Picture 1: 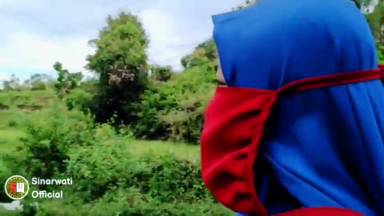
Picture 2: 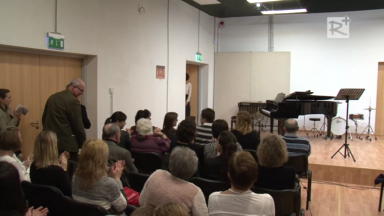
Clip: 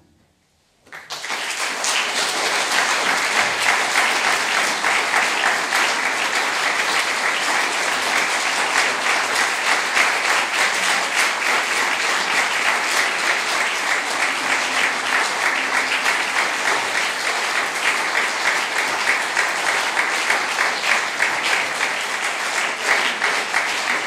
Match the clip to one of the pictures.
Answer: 2